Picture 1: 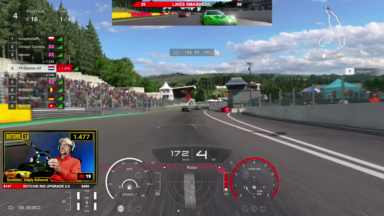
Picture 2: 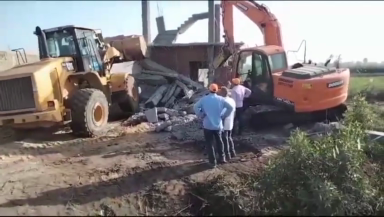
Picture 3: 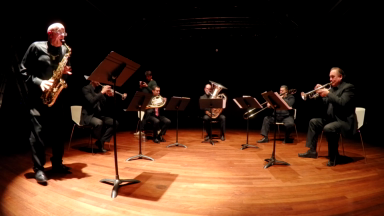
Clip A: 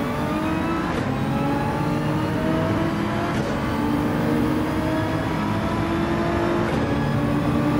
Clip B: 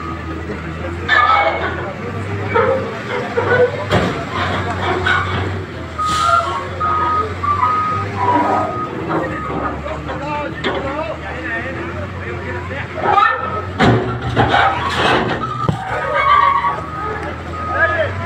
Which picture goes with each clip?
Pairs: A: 1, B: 2